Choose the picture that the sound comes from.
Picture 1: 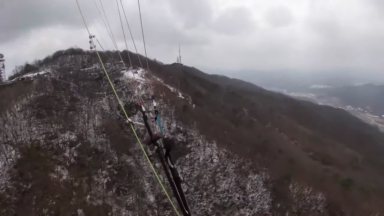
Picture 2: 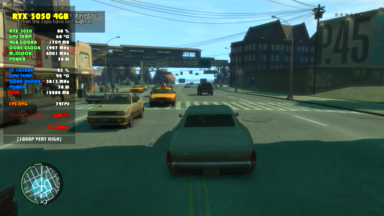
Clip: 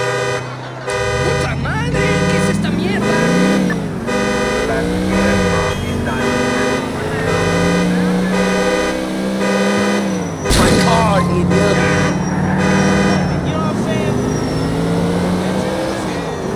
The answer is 2